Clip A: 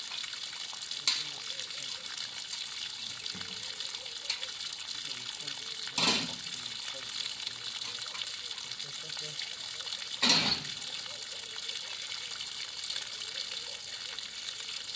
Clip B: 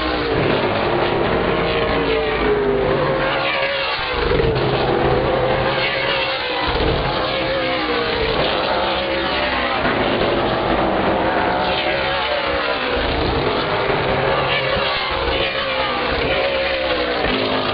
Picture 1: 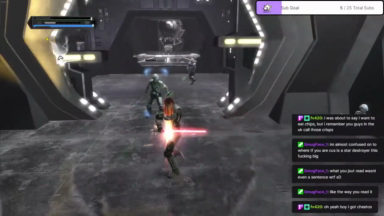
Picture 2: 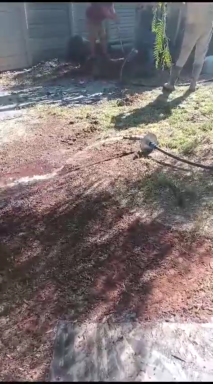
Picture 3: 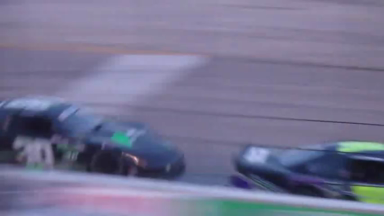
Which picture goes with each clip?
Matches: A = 2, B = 3